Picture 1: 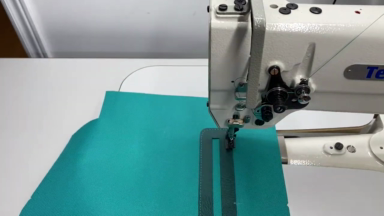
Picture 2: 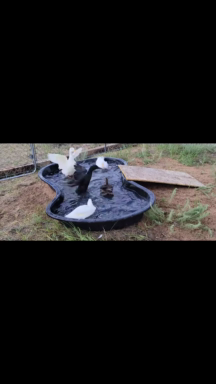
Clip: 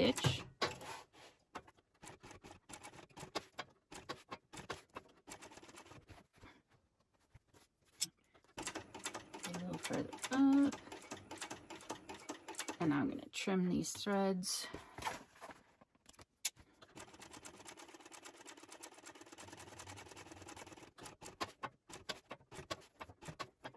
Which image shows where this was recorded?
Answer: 1